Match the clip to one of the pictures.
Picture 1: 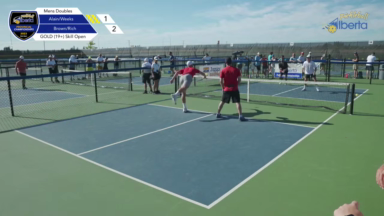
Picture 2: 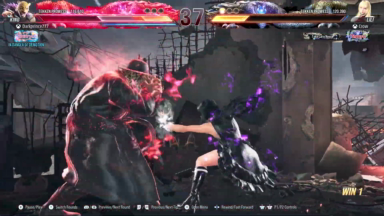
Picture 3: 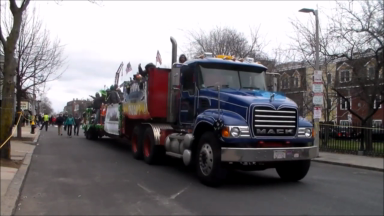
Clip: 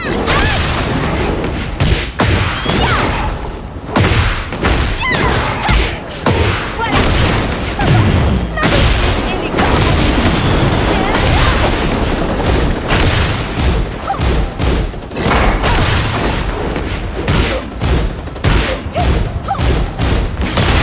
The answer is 2